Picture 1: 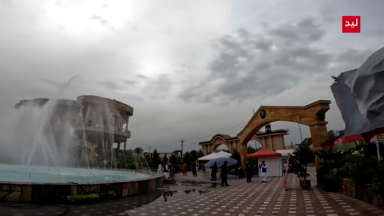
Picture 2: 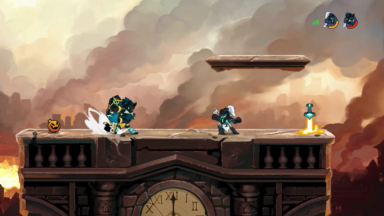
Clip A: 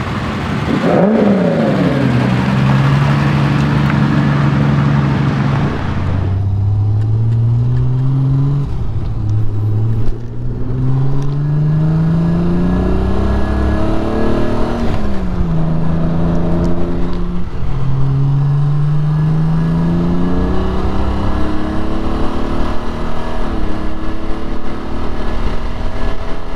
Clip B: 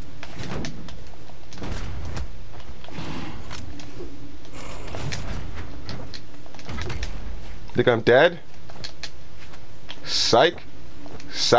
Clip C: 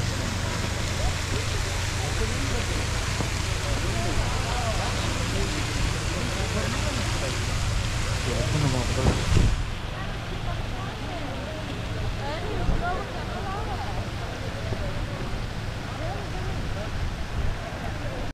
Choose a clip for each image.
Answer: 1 C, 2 B